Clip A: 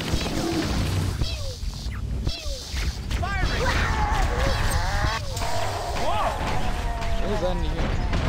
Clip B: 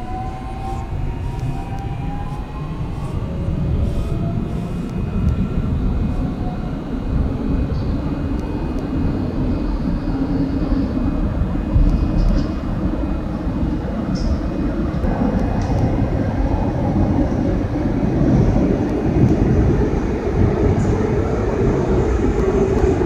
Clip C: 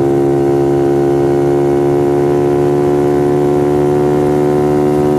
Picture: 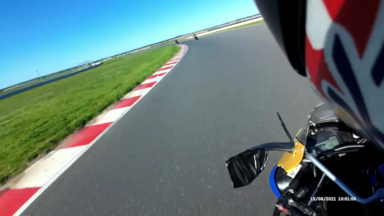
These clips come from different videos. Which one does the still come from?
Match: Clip C